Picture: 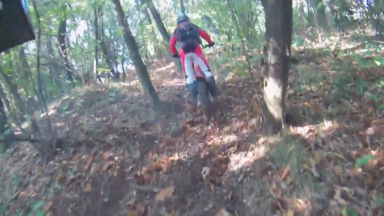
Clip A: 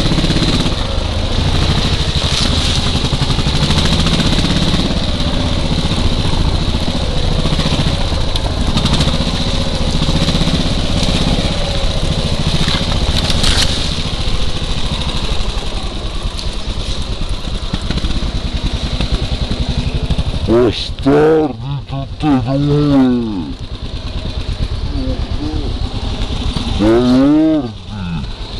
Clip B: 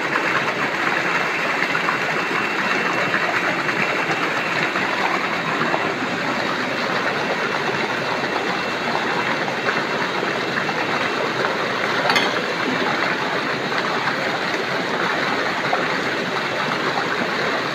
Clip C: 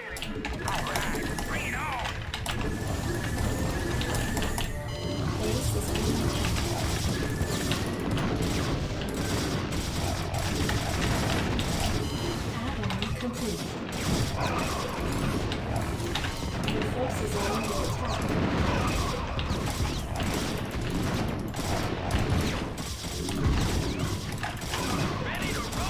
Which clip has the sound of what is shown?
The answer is A